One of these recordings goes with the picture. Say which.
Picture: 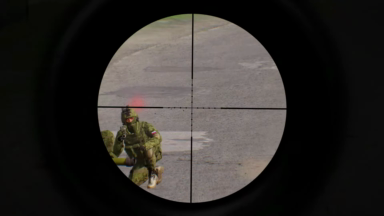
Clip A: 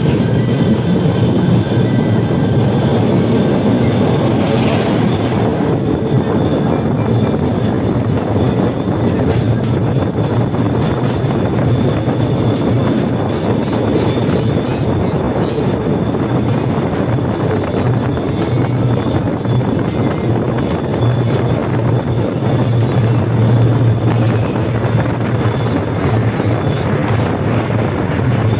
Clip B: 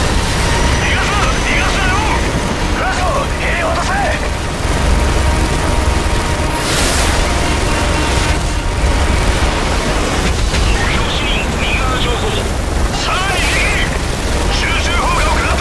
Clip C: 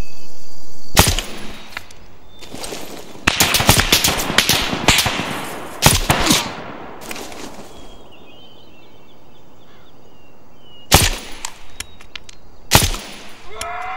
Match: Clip C